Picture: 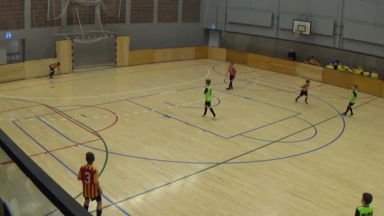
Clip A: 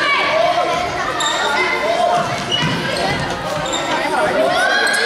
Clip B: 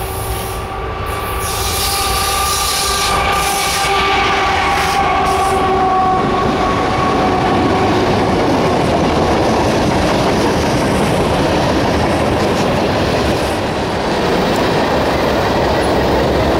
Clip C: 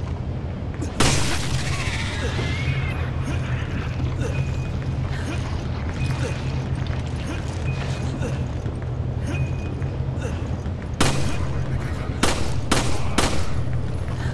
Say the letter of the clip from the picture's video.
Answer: A